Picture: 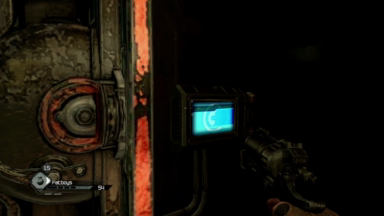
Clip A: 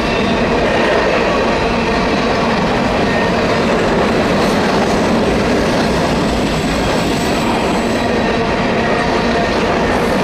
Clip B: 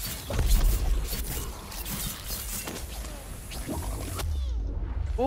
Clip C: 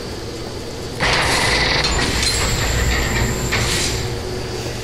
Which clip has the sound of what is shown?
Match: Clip C